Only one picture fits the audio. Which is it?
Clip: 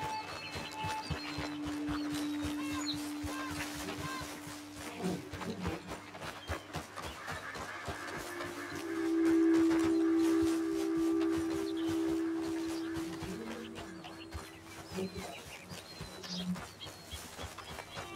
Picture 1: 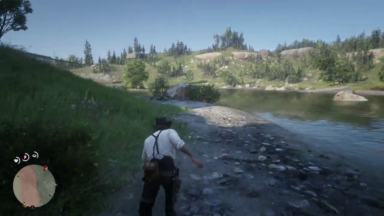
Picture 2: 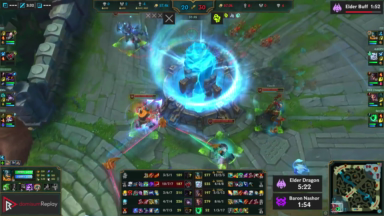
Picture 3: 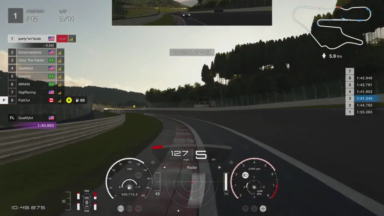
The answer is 1